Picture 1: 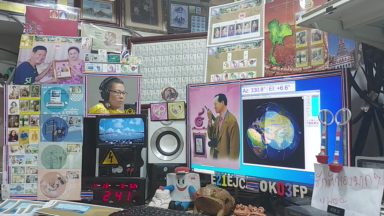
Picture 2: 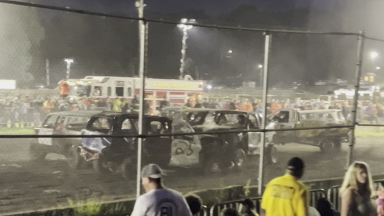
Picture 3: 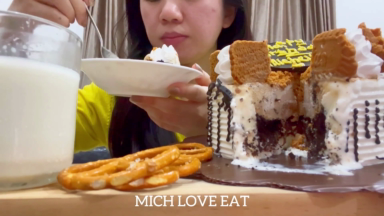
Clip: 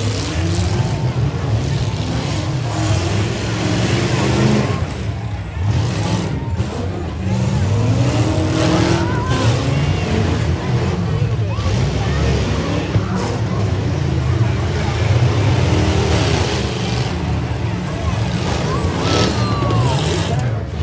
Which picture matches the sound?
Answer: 2